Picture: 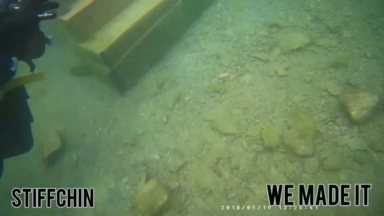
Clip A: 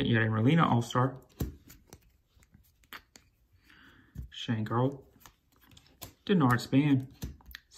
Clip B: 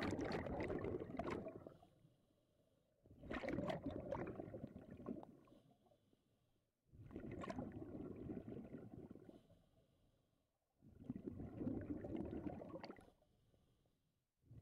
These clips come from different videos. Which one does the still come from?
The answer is B